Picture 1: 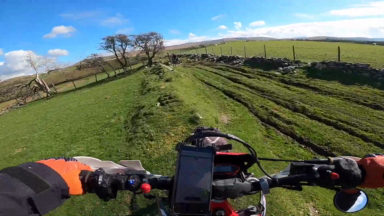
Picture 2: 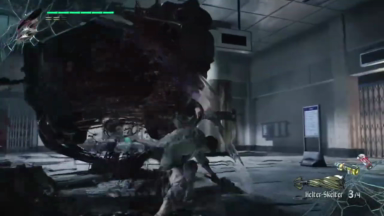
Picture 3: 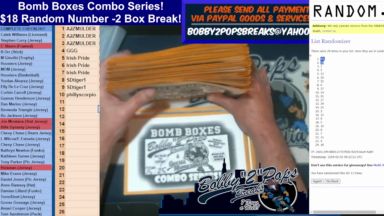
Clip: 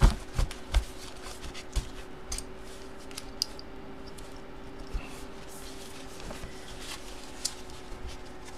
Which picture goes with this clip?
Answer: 3